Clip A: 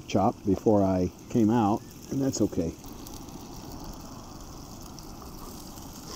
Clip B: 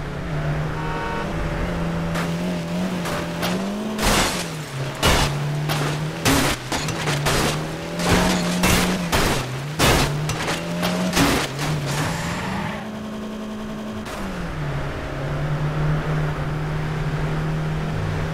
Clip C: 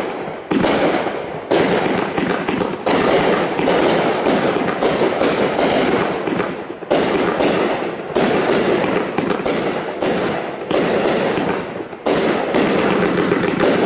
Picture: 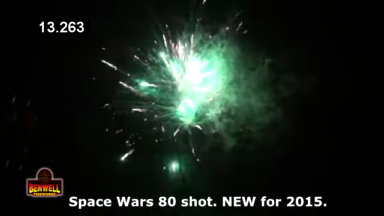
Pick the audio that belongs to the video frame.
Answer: C